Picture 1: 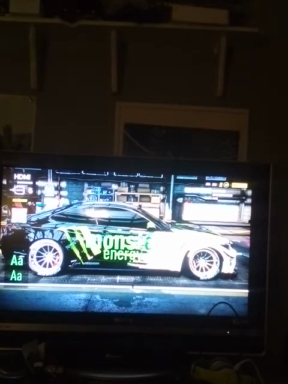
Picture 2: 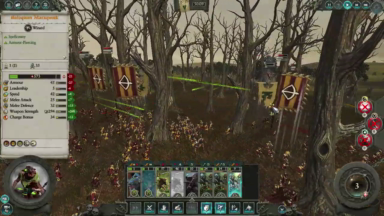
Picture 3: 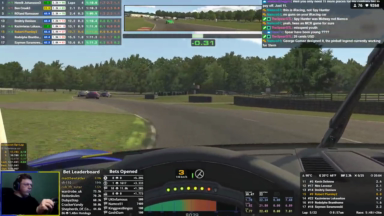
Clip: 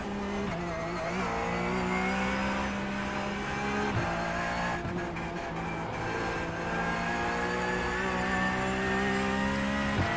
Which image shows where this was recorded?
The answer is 3